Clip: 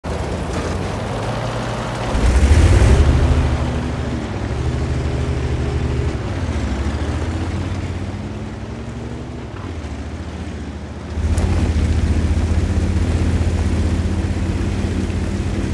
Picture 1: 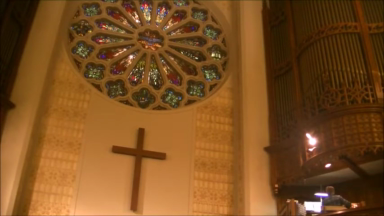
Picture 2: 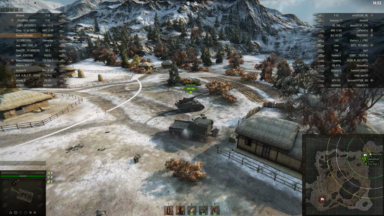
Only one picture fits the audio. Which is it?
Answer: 2